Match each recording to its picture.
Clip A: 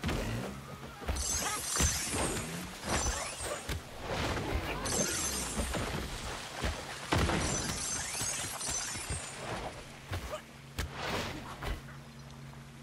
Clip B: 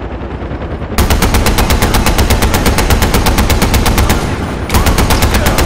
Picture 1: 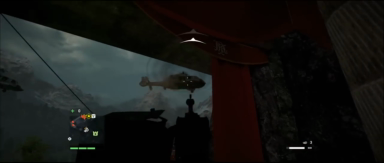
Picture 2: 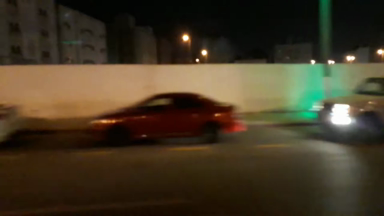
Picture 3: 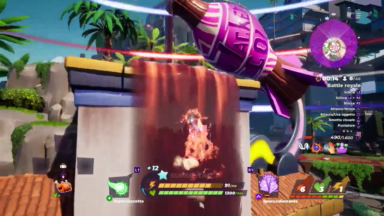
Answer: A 3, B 1